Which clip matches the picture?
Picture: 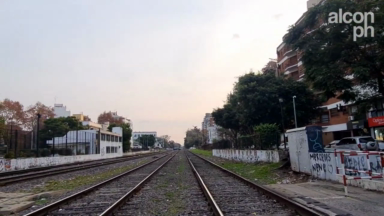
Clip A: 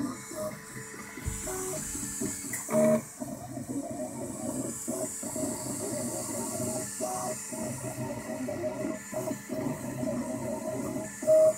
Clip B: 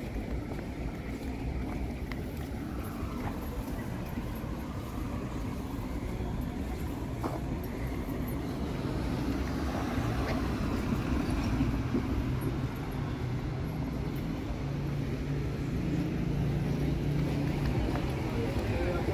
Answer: B